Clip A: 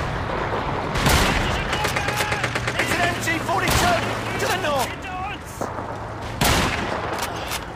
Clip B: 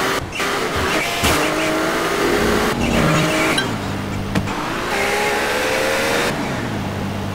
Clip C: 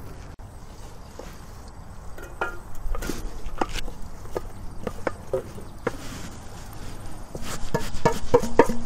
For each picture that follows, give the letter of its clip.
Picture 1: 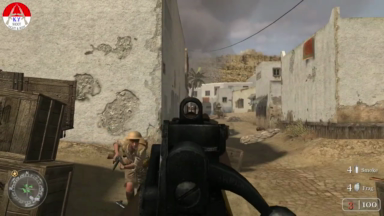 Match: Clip A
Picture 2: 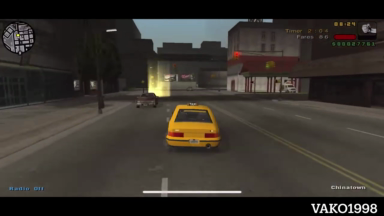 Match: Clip B